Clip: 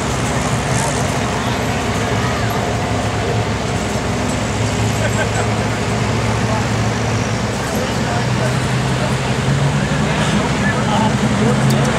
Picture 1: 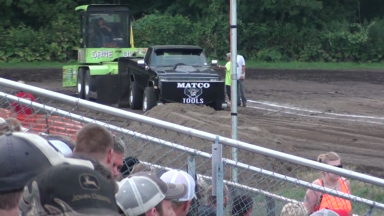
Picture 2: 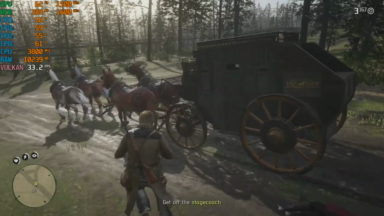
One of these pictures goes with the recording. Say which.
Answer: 1